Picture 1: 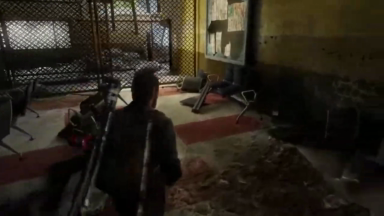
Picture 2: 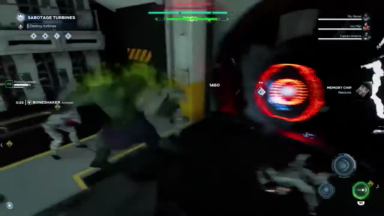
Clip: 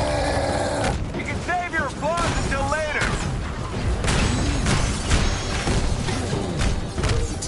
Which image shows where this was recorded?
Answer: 2